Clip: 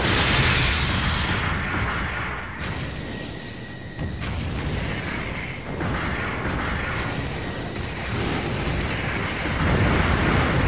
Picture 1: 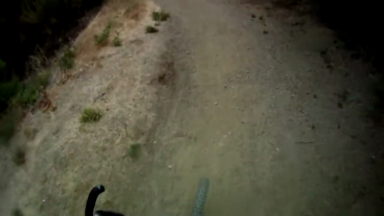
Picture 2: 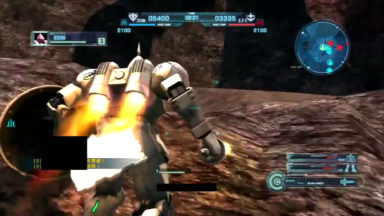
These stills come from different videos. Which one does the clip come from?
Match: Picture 2